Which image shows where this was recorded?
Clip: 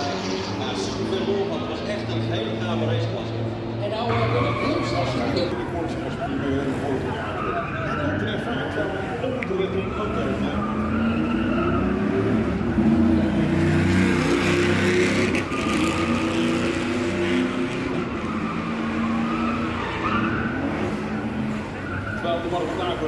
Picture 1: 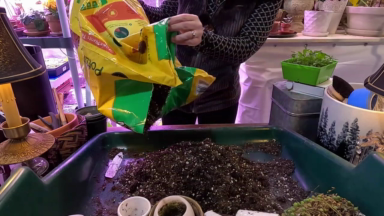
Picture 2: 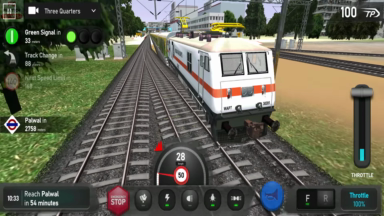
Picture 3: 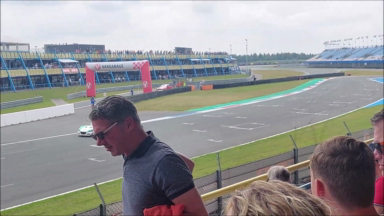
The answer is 3